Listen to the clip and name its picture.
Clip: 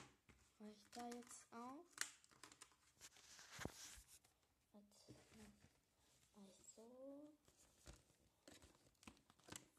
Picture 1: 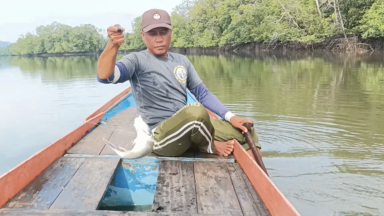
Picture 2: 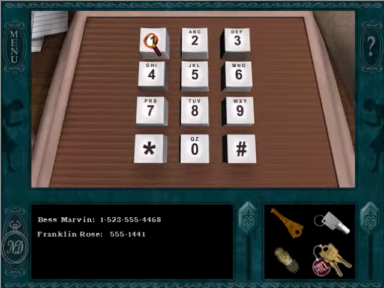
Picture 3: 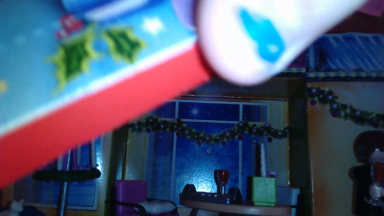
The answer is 3